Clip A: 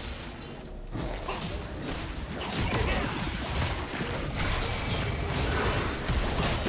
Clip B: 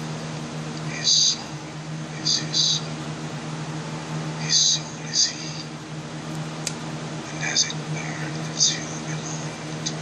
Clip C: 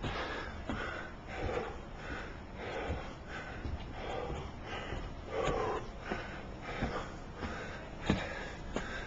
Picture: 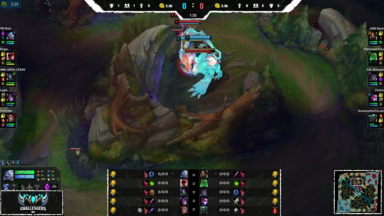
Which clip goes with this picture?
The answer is A